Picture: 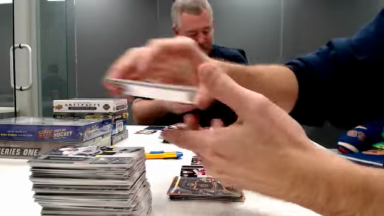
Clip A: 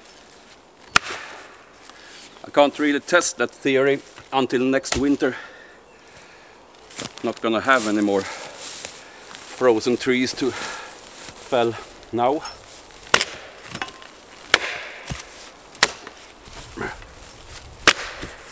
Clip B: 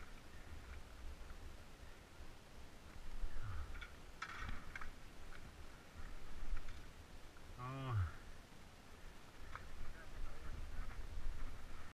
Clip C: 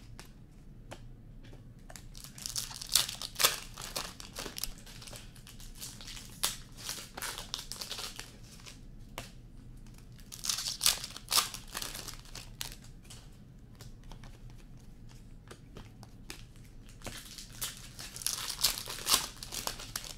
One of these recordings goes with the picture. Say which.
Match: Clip C